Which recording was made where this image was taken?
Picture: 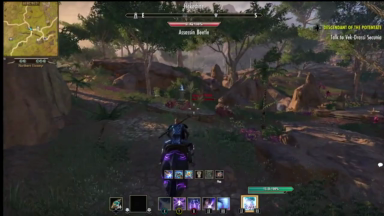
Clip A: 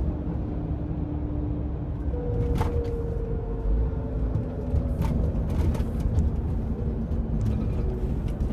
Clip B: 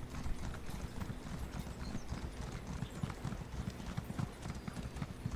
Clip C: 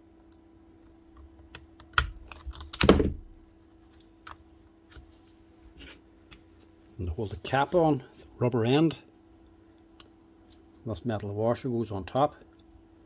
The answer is B